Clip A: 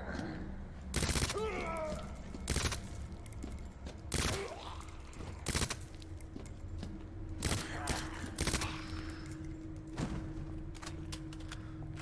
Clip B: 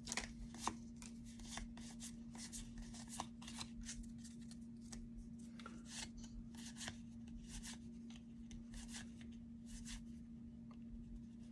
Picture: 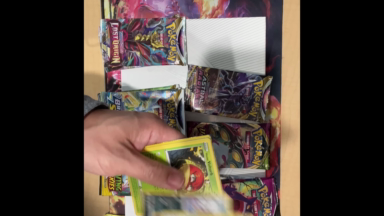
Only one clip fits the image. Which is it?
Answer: B